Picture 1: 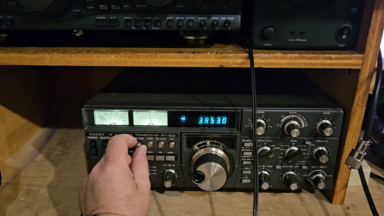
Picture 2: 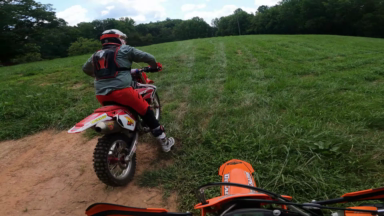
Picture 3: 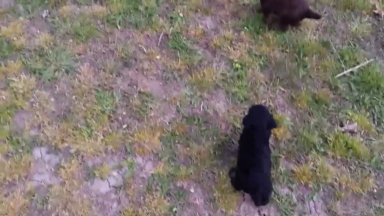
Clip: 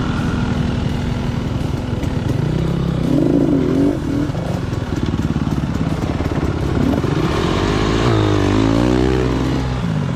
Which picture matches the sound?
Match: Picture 2